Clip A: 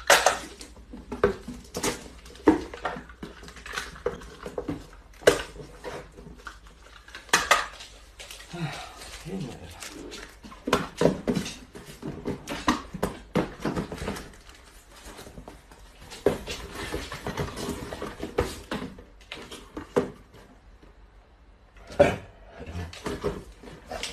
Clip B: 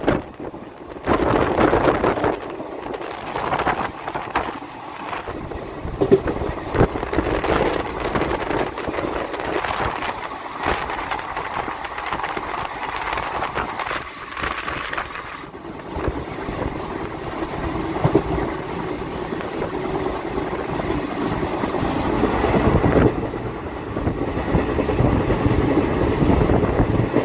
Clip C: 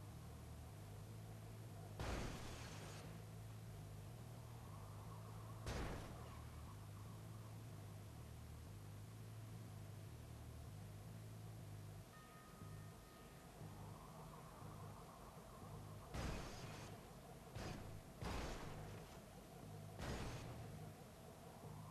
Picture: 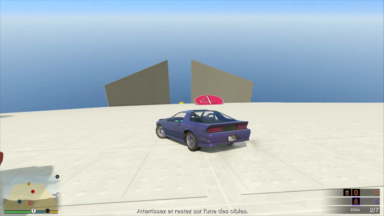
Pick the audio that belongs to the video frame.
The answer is C